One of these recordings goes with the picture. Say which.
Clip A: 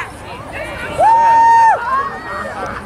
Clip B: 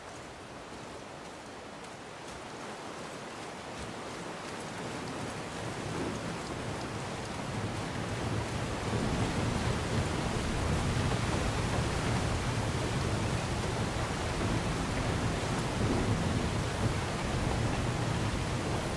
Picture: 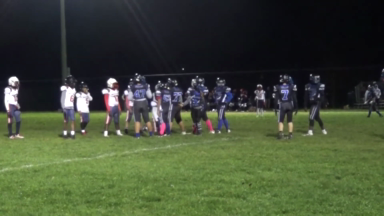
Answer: A